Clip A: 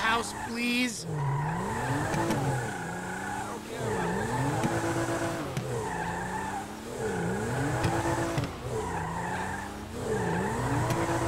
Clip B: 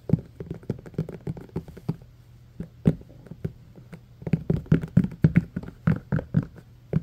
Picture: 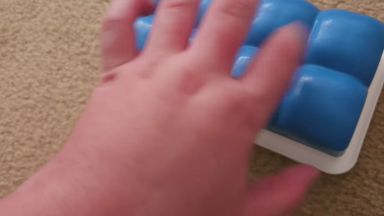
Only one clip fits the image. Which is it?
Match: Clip B